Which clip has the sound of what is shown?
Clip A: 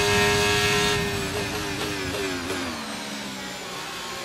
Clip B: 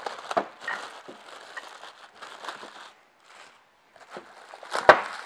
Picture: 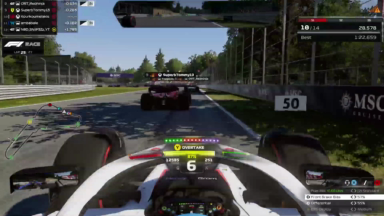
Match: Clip A